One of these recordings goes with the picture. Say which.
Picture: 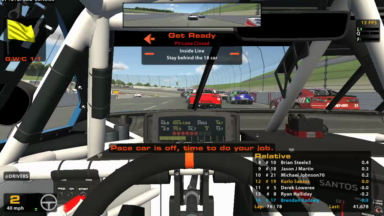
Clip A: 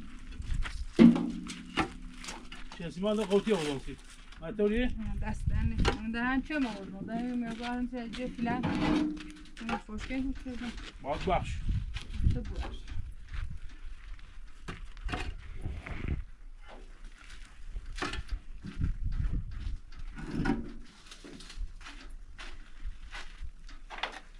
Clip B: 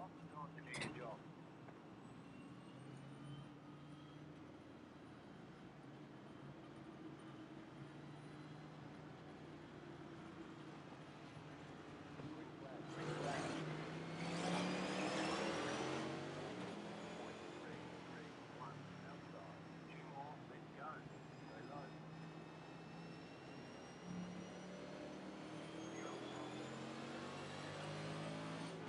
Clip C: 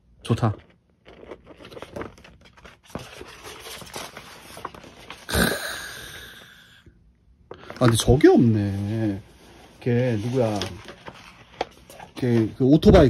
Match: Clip B